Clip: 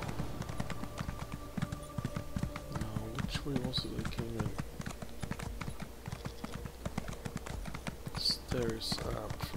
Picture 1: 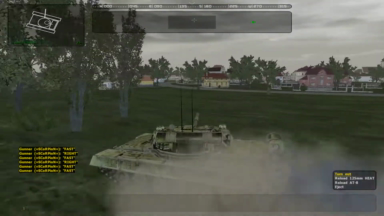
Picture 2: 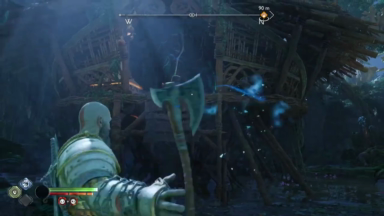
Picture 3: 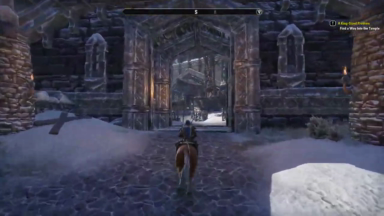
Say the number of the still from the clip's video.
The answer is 3